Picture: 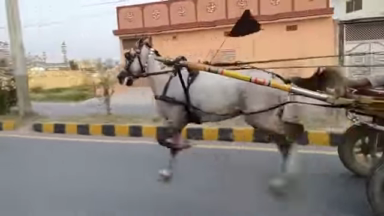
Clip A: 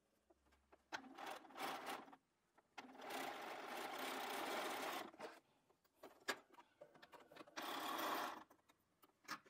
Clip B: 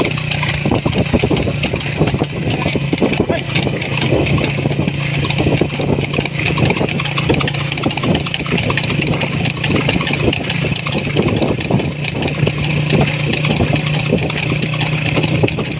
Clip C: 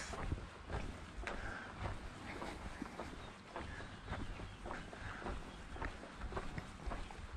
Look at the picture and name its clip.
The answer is B